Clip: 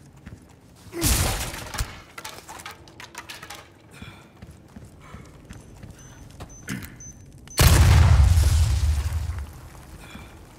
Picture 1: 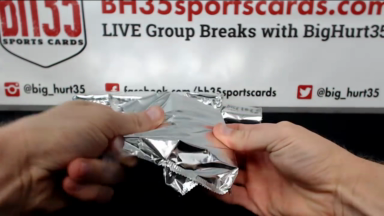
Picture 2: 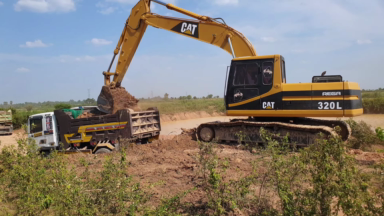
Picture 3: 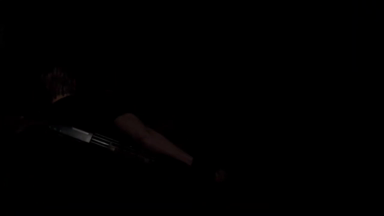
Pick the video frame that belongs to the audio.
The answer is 3